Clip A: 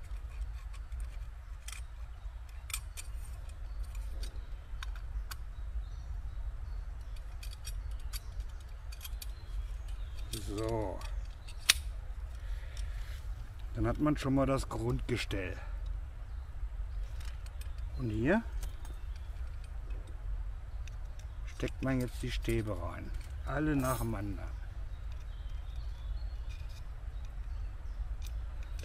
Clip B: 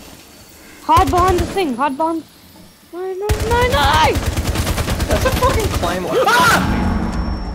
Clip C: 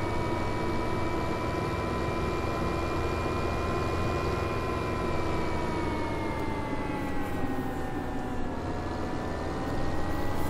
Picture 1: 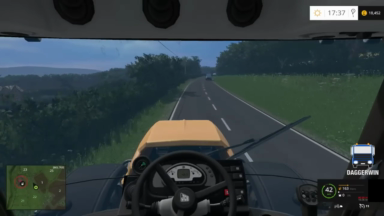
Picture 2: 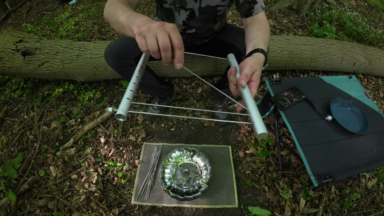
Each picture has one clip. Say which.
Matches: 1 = C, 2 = A